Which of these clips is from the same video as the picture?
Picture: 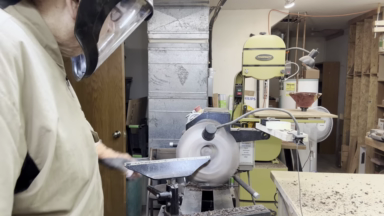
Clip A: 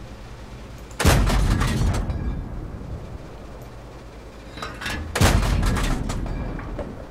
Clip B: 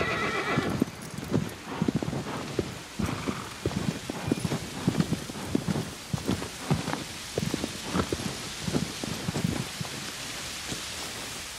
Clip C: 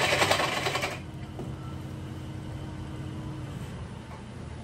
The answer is C